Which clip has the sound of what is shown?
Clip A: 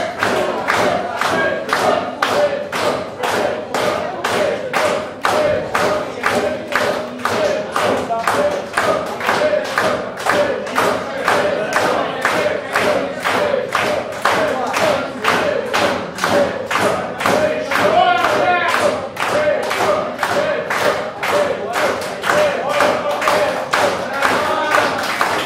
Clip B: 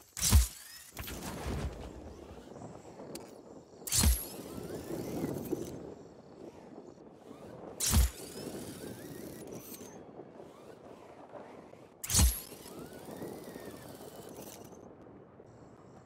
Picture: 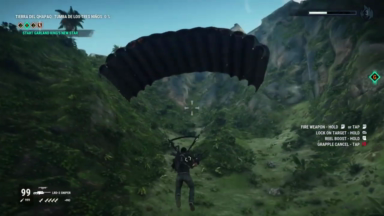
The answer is B